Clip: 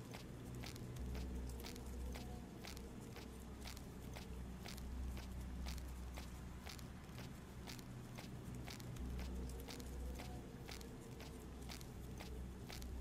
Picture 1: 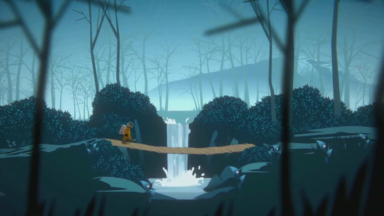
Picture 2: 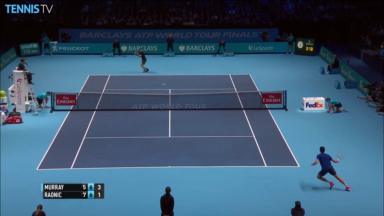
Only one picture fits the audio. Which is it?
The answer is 1